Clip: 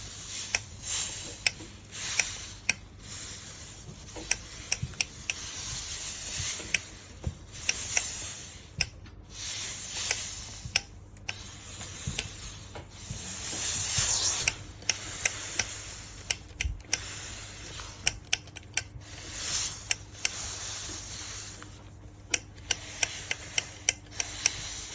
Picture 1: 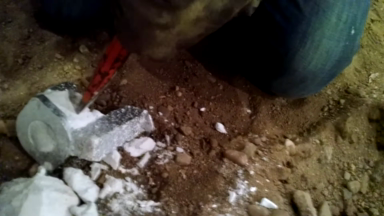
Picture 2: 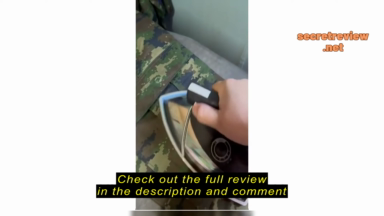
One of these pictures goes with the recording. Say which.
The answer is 2